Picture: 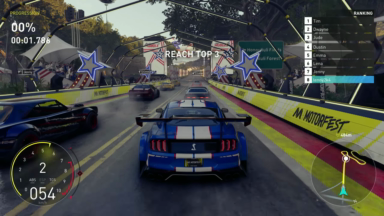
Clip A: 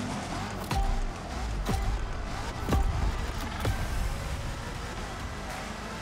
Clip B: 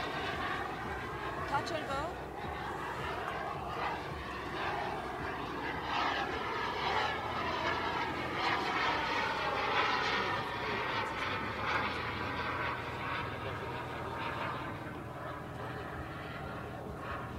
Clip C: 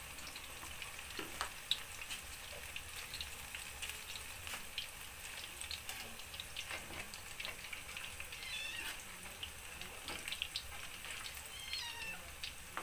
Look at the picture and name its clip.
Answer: A